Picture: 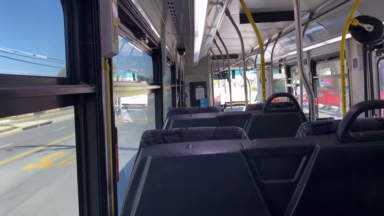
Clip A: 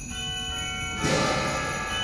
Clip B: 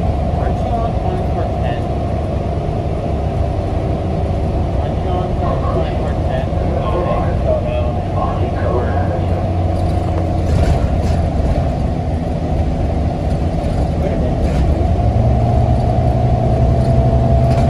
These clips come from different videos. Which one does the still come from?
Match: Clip B